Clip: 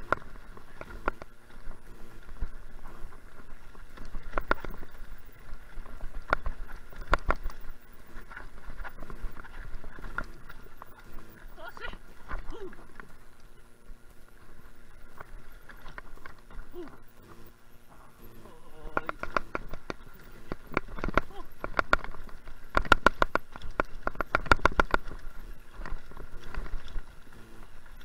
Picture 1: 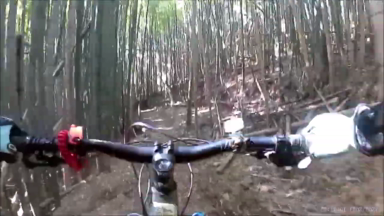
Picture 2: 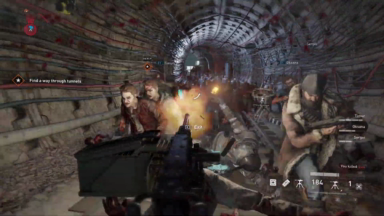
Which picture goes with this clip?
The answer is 1